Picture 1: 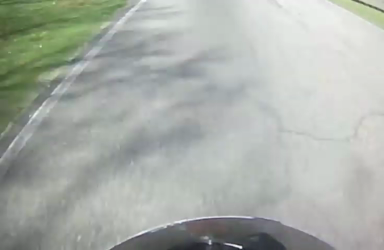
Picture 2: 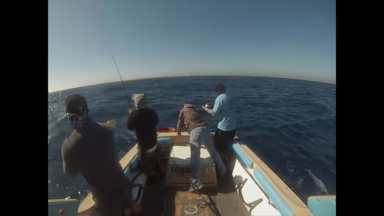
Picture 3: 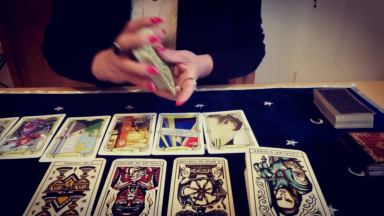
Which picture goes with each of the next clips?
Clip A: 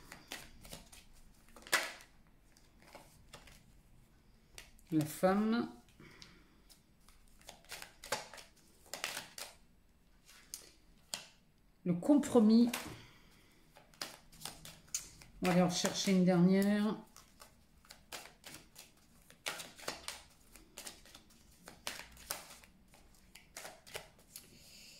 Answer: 3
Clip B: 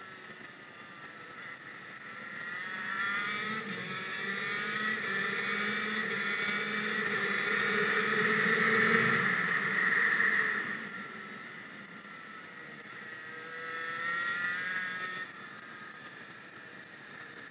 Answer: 1